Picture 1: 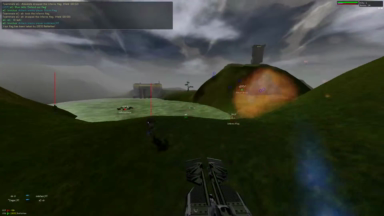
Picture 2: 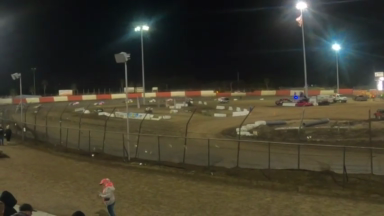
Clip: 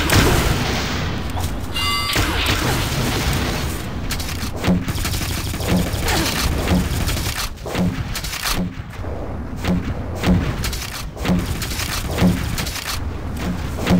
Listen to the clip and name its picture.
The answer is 1